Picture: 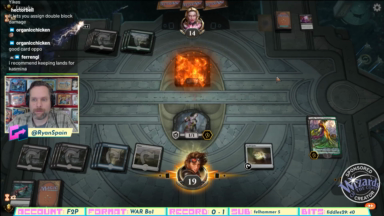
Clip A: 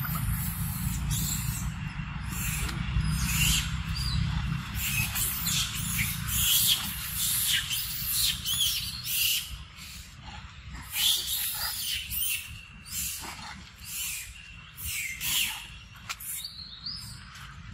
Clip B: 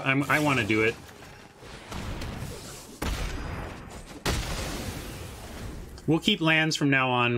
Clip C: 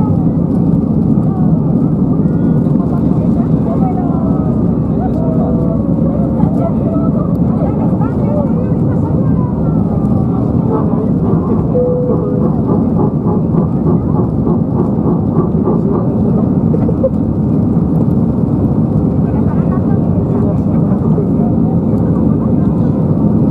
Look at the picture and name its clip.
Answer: B